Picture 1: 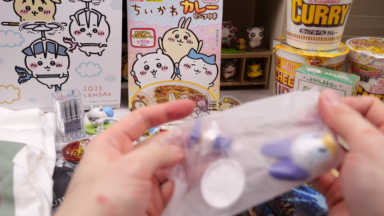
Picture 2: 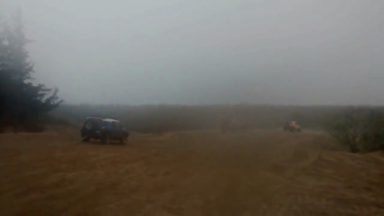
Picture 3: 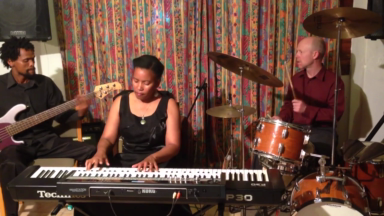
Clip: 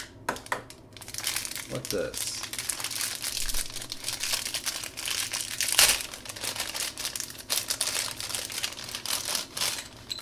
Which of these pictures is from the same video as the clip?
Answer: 1